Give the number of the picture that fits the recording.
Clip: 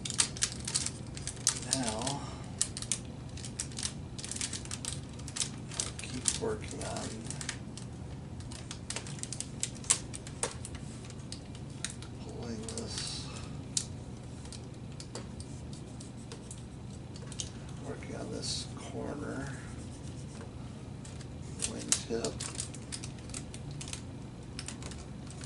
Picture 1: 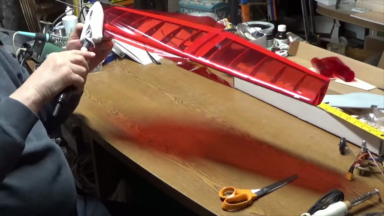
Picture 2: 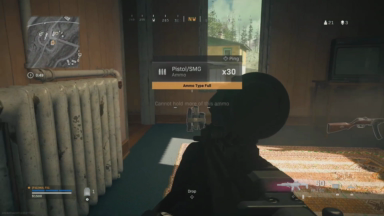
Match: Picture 1